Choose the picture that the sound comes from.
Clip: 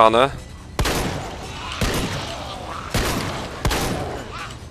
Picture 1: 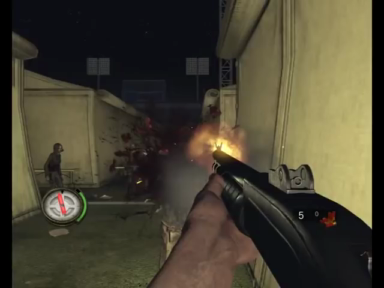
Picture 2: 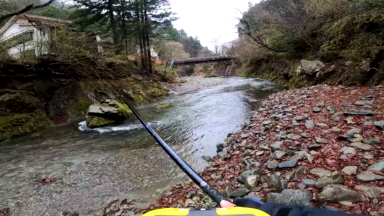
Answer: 1